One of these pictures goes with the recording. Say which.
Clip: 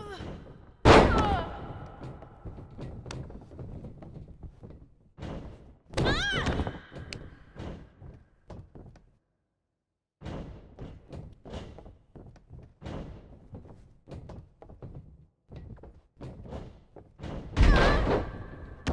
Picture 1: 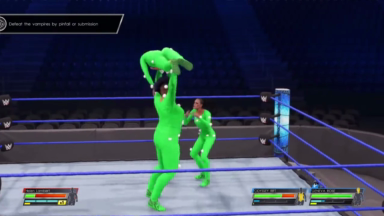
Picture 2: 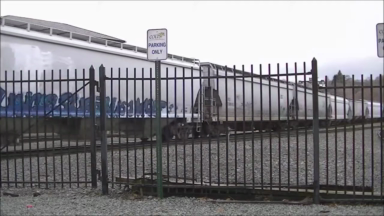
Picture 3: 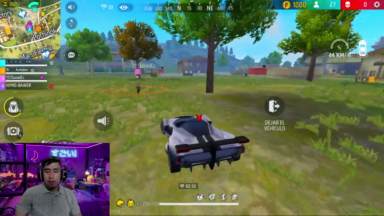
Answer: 1